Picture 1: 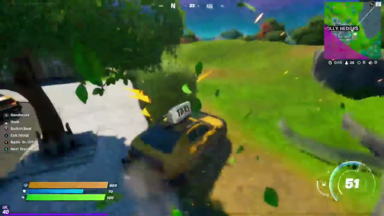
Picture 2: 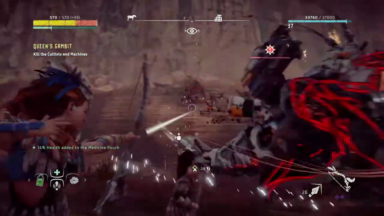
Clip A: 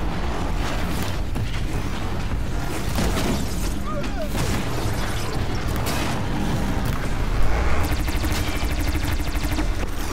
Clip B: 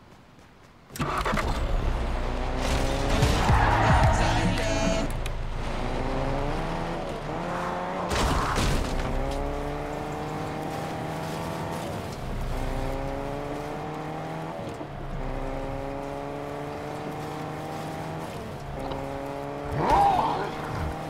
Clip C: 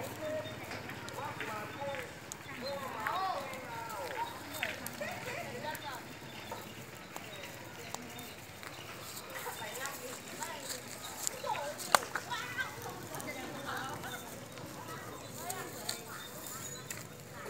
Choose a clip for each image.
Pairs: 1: B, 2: A